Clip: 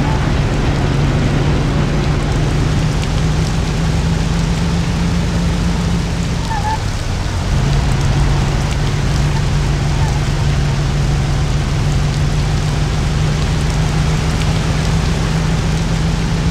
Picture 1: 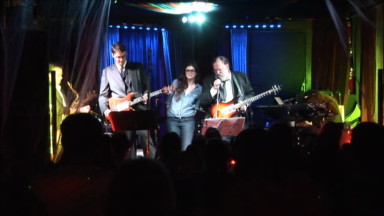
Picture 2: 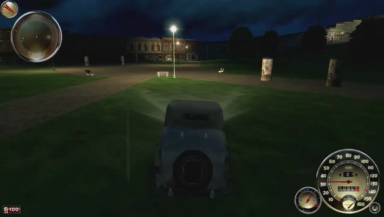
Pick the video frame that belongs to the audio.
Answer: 2